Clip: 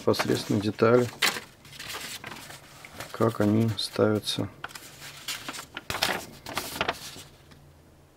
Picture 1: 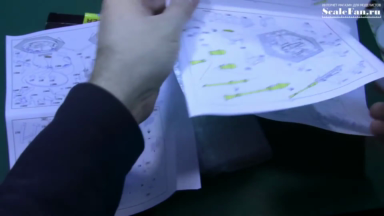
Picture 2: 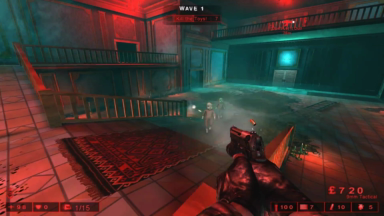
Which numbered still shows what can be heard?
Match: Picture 1